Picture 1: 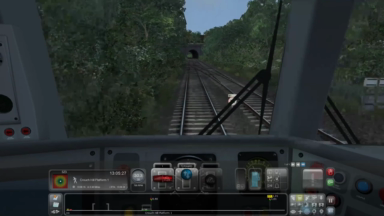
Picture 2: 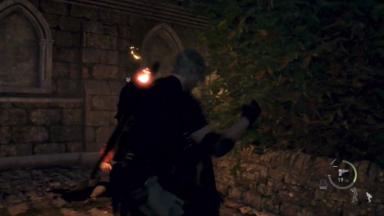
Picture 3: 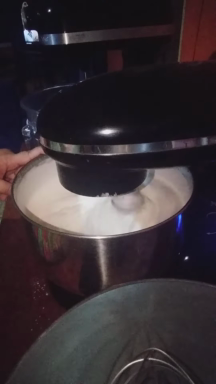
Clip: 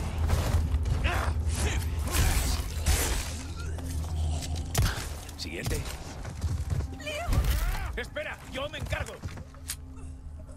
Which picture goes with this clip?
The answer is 2